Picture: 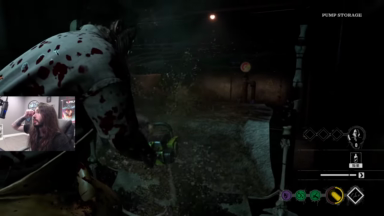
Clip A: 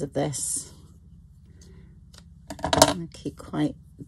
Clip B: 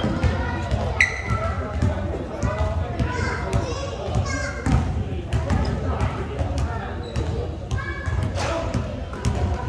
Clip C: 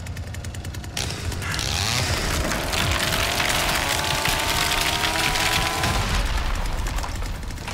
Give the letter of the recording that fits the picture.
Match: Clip C